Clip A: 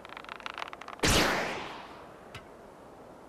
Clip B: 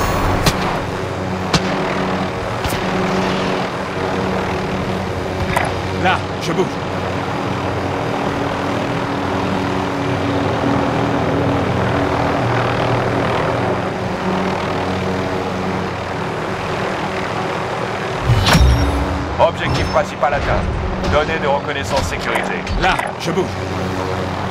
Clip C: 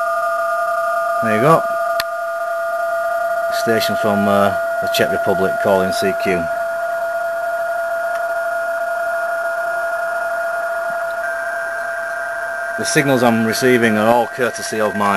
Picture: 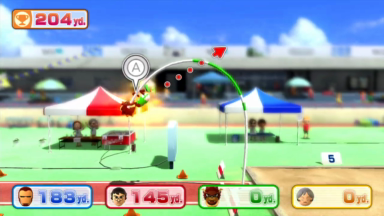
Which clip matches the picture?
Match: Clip A